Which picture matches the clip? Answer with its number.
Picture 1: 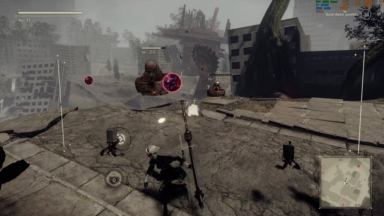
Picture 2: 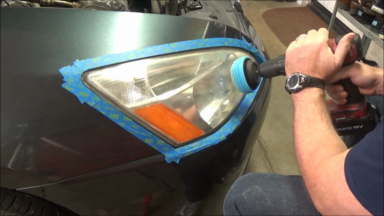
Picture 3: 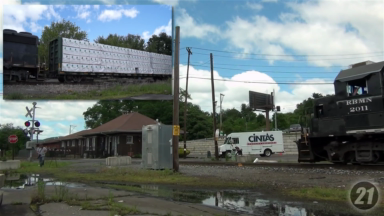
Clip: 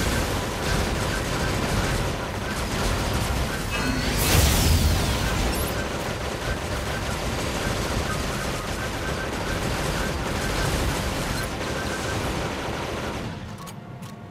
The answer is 1